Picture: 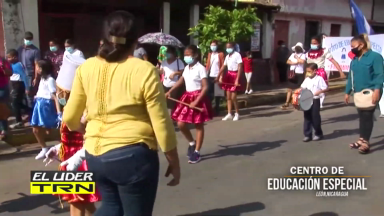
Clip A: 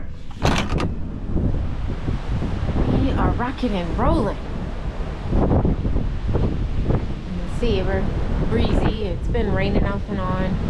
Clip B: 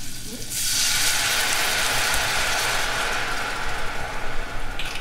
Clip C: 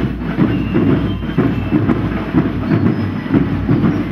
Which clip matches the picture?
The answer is C